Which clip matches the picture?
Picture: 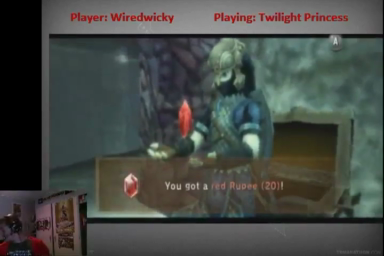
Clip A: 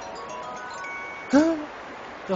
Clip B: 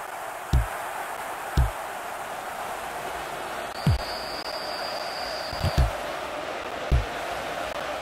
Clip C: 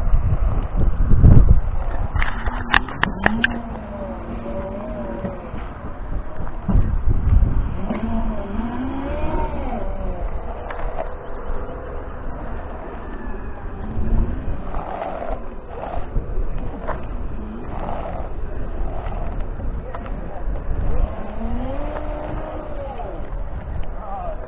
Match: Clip A